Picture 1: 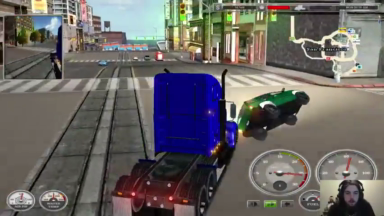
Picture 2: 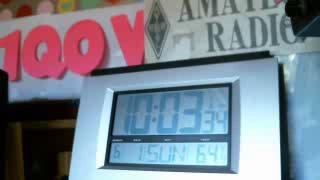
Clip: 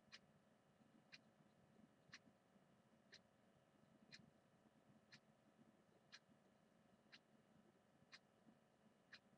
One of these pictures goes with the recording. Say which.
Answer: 2